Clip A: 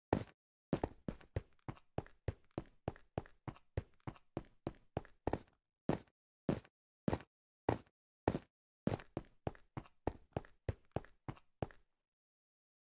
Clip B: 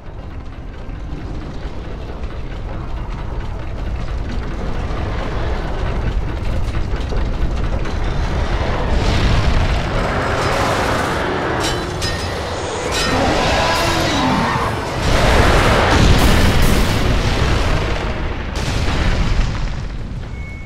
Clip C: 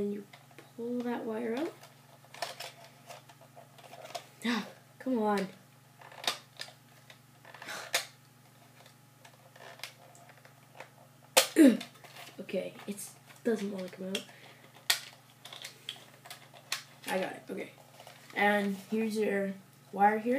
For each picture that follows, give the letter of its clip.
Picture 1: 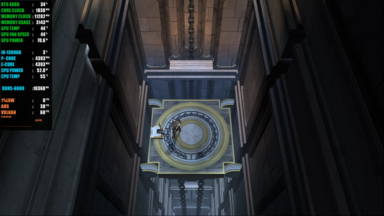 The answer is B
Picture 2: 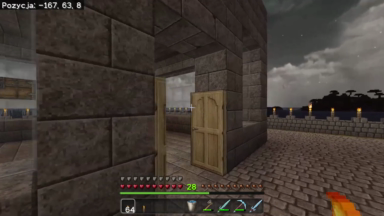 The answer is A